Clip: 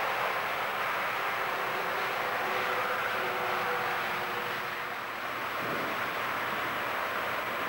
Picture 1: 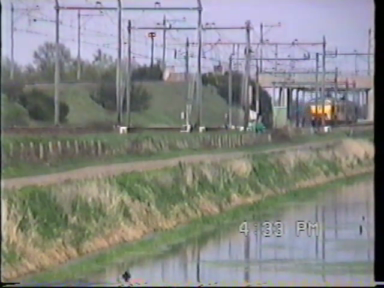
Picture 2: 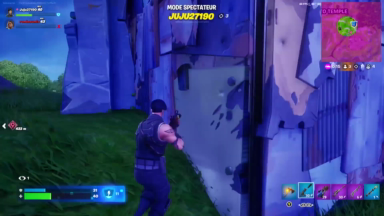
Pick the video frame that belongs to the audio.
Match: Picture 1